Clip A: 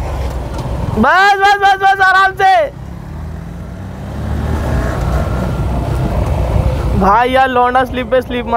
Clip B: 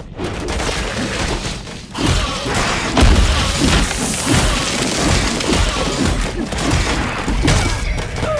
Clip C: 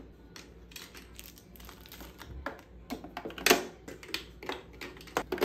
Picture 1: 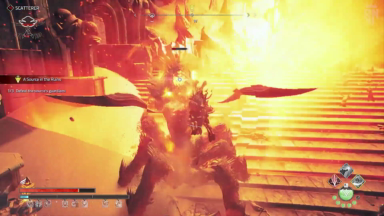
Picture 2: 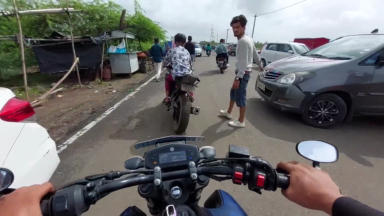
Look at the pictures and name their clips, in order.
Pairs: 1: B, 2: A